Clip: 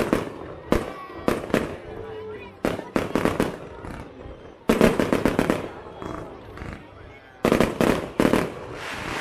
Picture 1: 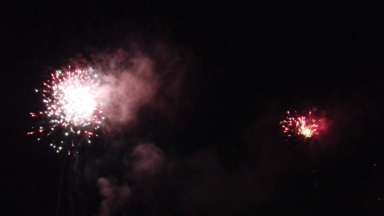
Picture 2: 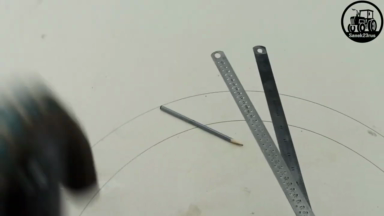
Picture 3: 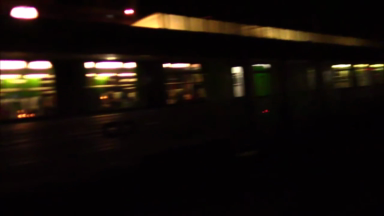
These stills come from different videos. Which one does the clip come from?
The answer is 1